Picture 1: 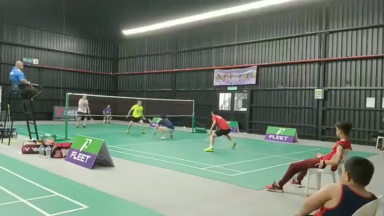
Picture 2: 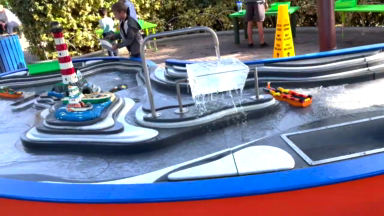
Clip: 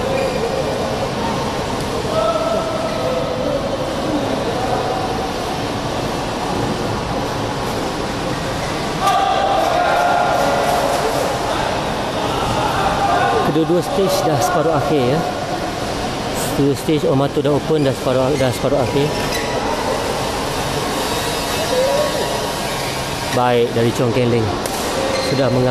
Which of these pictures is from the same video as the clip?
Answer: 1